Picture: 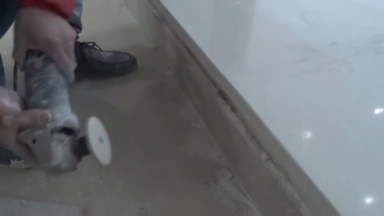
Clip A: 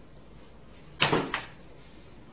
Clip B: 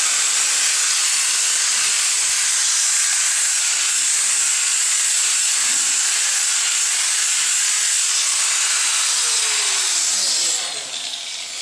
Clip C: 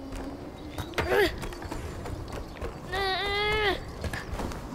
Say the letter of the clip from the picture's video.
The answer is B